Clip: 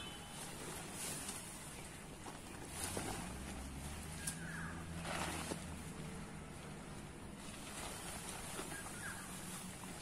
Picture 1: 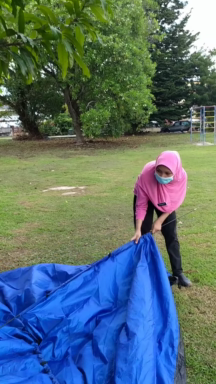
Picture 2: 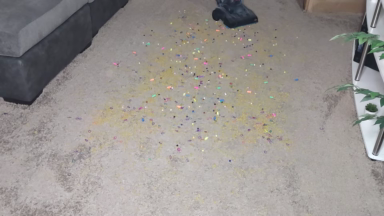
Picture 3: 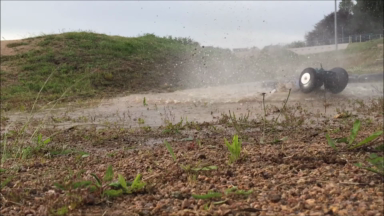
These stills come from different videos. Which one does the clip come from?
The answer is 1